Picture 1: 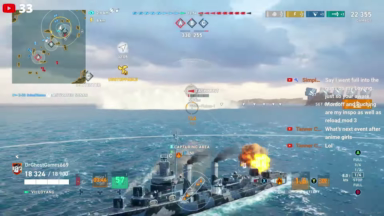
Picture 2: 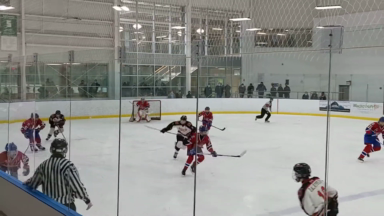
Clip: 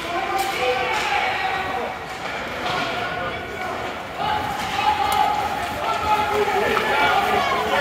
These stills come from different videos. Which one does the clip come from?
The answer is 2